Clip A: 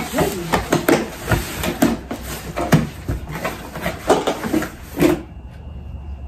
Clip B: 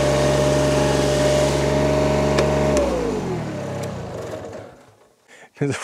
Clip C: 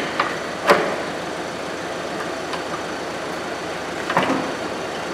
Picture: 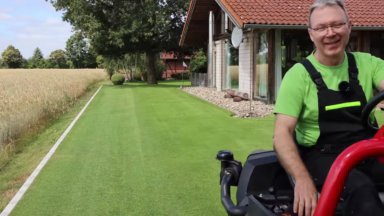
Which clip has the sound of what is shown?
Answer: B